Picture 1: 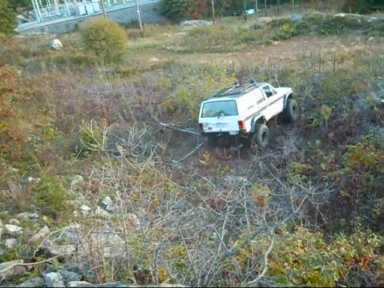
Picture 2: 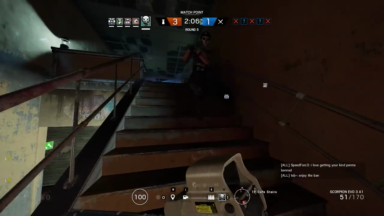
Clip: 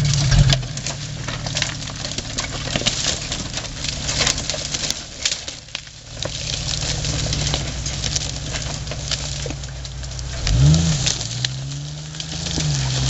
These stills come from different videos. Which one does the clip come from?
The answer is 1